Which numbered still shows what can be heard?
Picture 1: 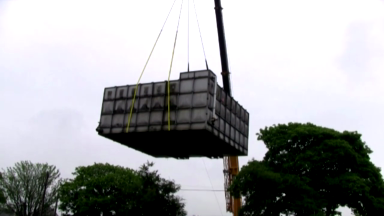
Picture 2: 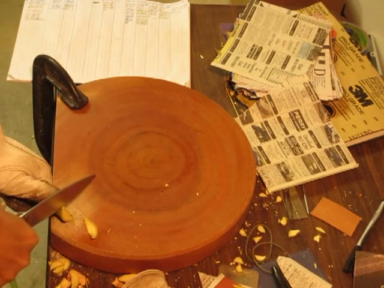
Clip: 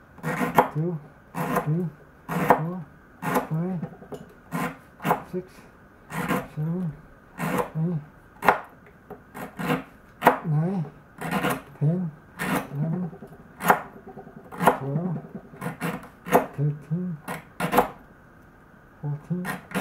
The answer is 2